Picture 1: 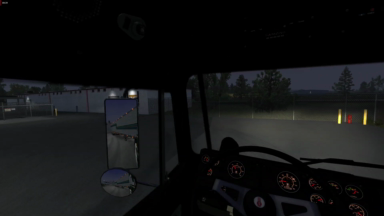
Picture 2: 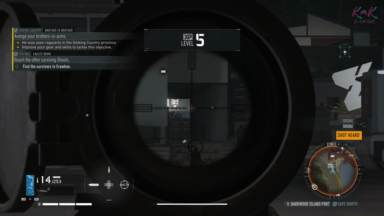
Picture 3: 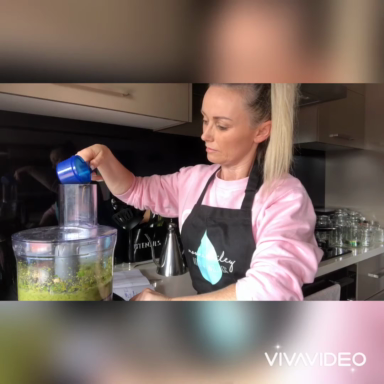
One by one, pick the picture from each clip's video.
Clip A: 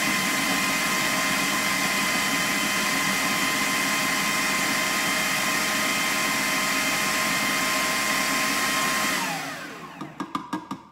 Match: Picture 3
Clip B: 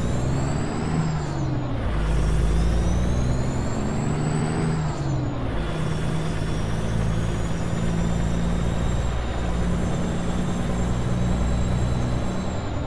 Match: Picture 1